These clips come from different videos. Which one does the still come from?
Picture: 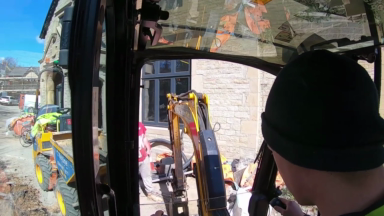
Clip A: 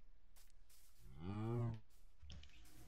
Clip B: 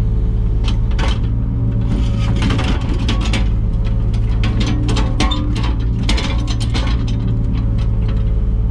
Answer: B